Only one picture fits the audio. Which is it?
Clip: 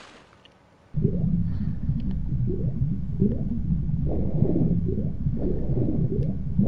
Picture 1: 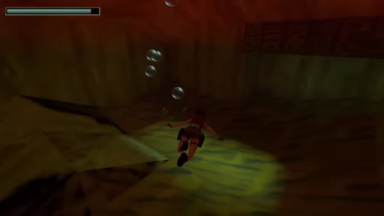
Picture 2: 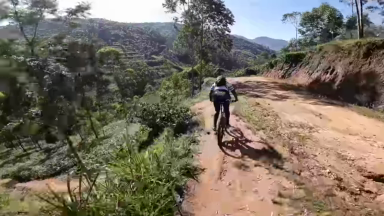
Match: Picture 1